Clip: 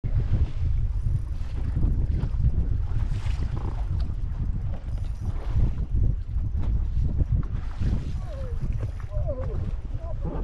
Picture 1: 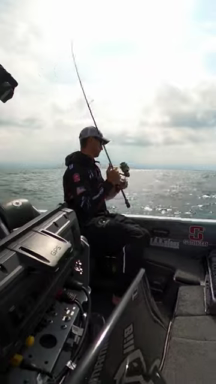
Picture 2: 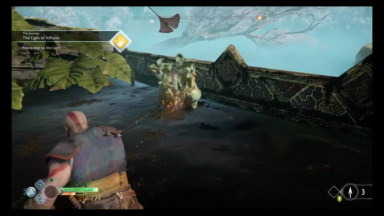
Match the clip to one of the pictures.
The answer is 1